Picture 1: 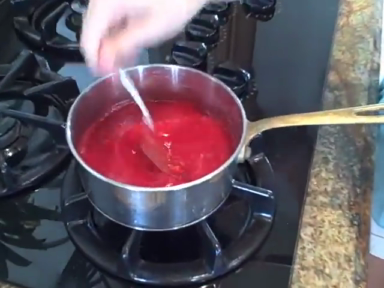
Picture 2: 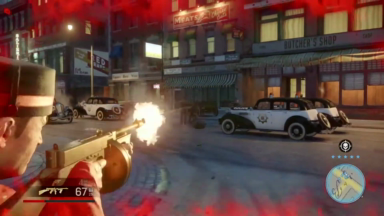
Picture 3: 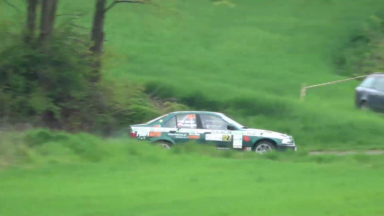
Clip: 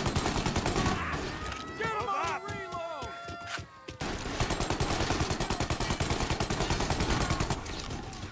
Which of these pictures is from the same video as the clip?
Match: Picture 2